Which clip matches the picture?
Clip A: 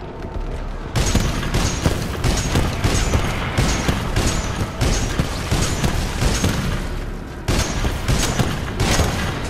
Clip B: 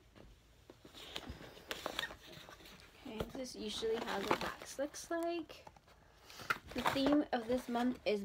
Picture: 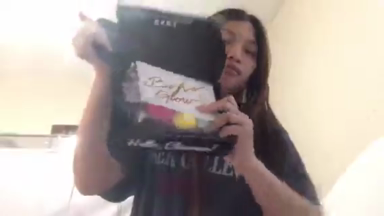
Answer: B